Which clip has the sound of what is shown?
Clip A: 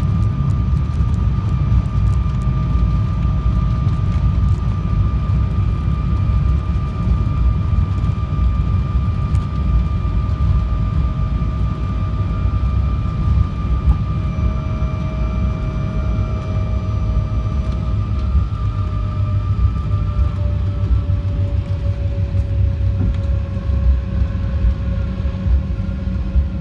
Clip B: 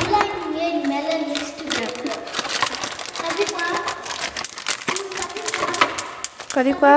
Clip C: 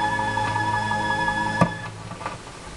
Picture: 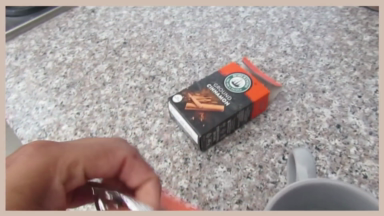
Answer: B